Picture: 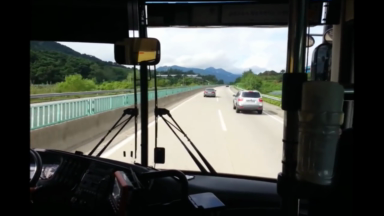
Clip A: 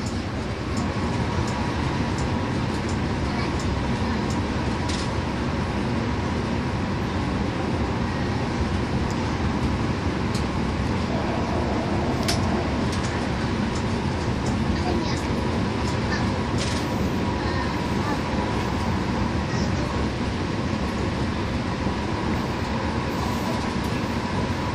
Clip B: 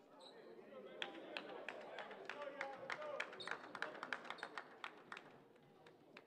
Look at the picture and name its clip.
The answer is A